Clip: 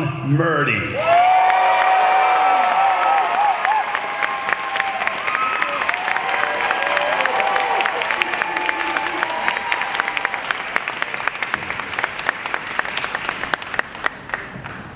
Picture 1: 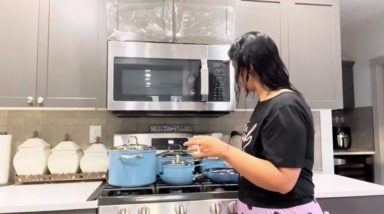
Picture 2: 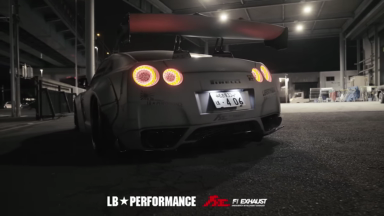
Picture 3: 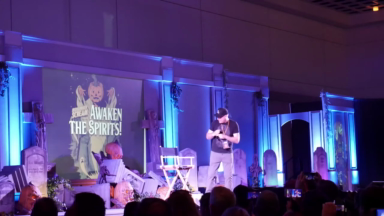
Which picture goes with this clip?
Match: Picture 3